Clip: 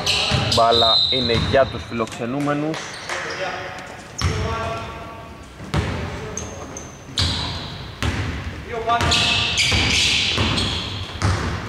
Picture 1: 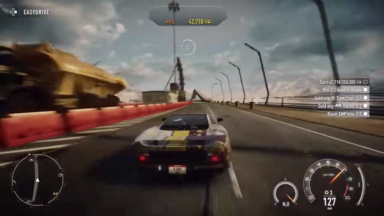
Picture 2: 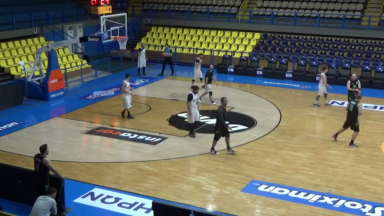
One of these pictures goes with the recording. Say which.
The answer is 2